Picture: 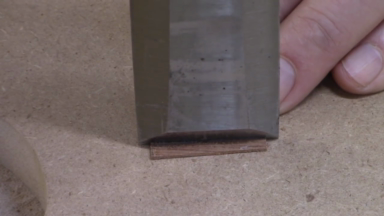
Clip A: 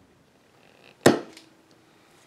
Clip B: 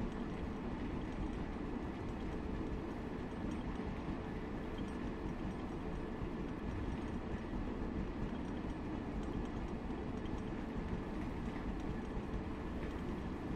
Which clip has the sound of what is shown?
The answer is A